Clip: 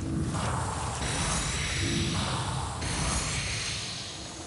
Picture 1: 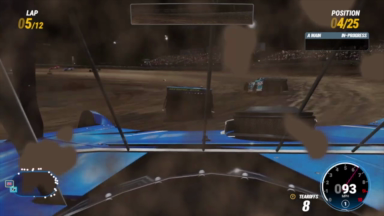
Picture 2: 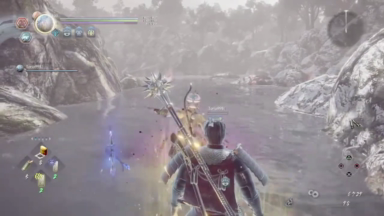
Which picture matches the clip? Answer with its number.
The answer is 2